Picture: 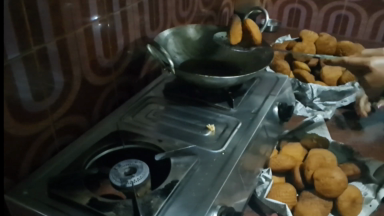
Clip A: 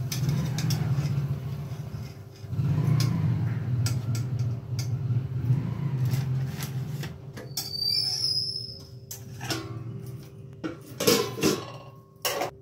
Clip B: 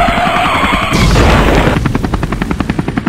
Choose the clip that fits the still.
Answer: A